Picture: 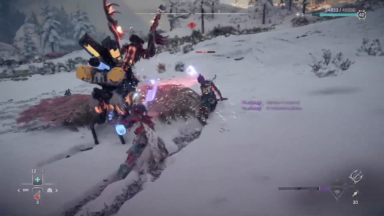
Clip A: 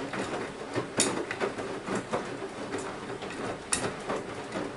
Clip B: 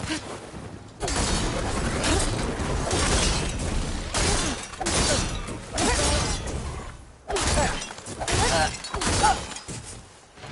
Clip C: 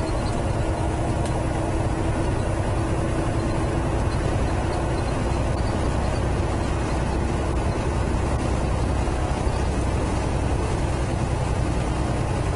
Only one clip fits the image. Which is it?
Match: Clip B